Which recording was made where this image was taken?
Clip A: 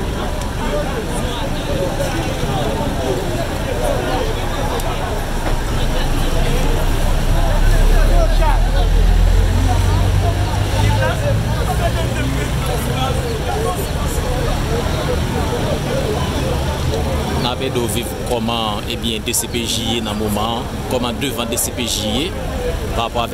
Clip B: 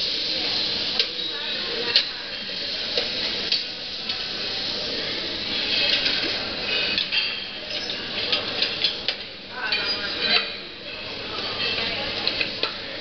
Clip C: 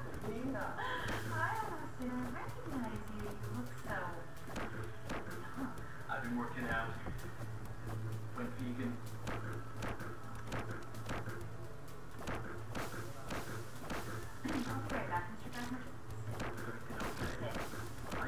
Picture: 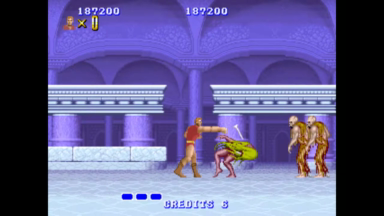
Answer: C